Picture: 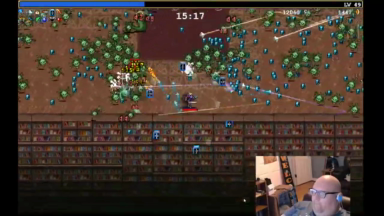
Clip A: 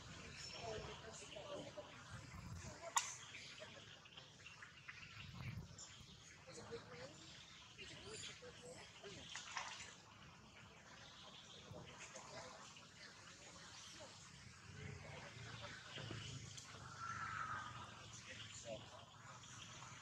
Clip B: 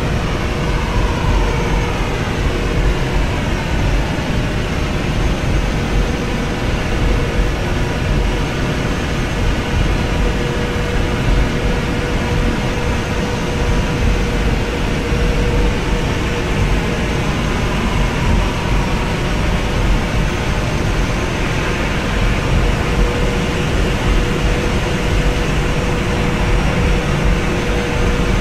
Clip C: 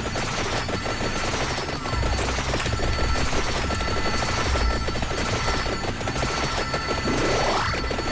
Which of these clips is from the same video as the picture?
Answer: C